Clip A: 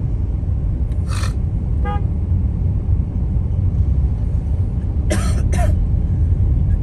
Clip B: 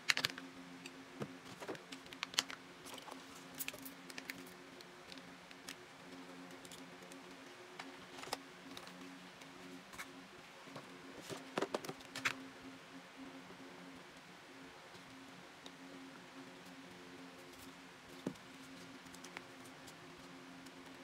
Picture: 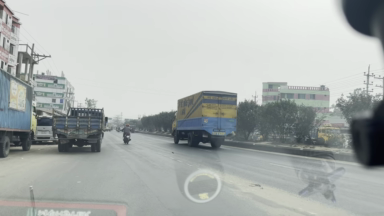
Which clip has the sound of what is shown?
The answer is A